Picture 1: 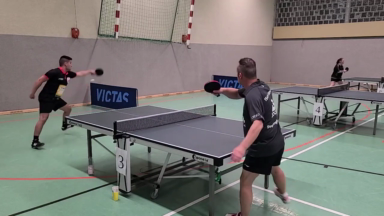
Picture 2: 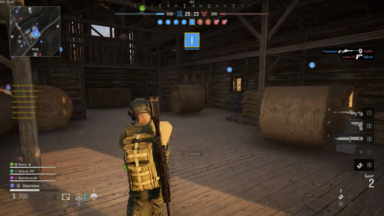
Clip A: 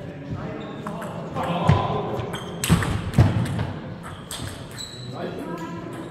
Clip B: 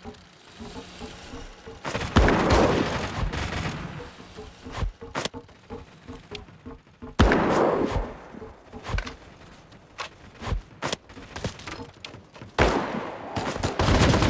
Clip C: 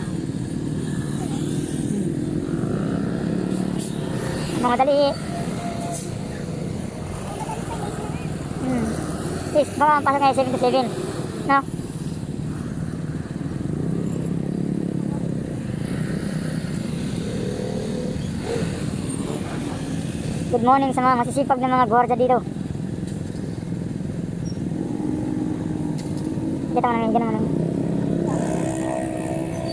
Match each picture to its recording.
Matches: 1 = A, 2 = B